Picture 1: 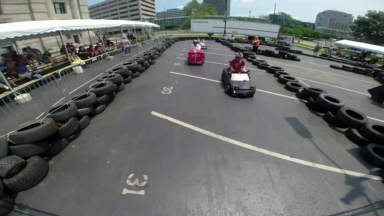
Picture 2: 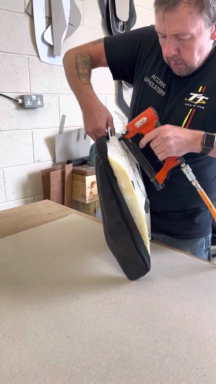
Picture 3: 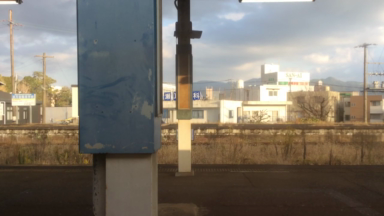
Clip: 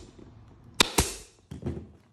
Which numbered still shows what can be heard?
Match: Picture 2